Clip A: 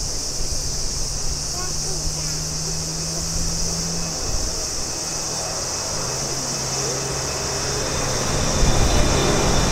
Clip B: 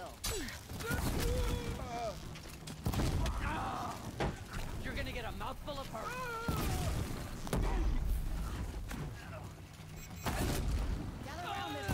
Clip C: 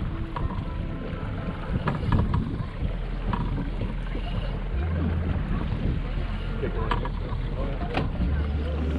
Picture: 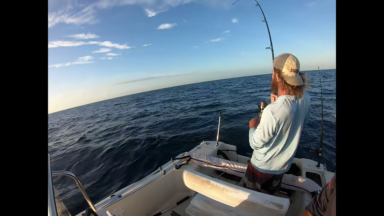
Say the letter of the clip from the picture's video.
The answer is C